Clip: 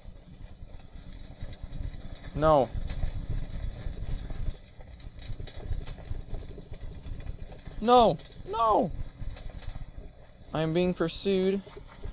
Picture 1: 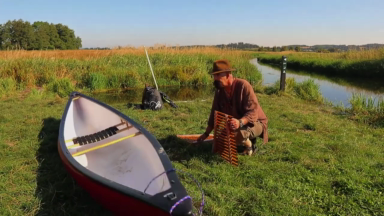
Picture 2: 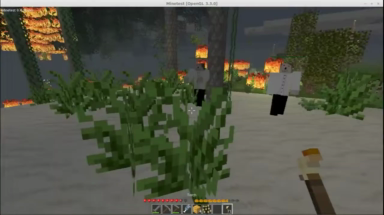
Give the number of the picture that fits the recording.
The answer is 2